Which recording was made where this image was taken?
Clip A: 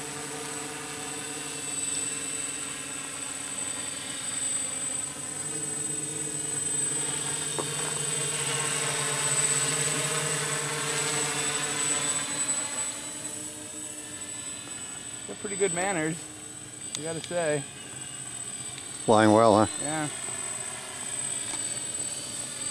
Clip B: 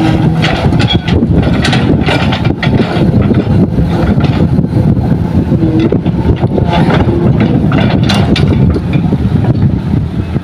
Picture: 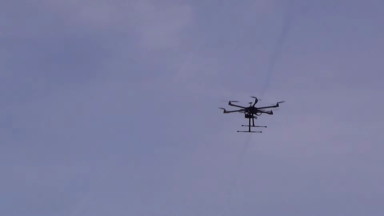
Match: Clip A